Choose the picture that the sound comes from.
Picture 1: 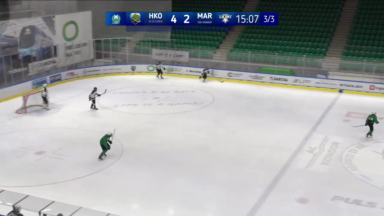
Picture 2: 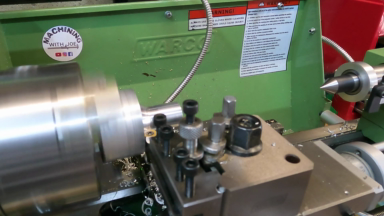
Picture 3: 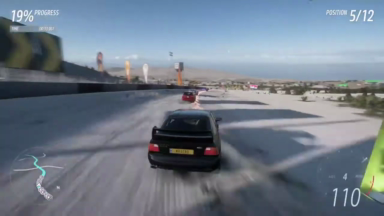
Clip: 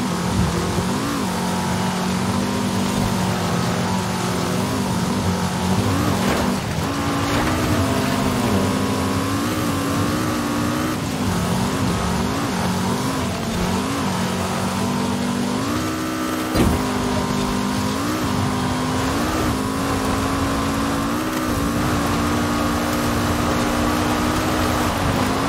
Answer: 3